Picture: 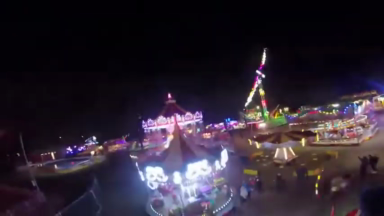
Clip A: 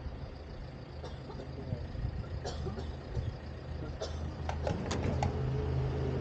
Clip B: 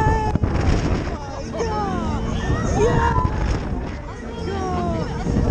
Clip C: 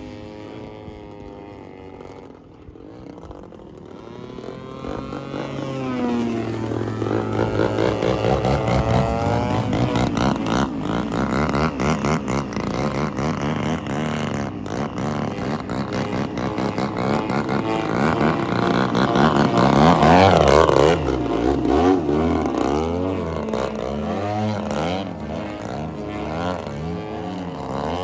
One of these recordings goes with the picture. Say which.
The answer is B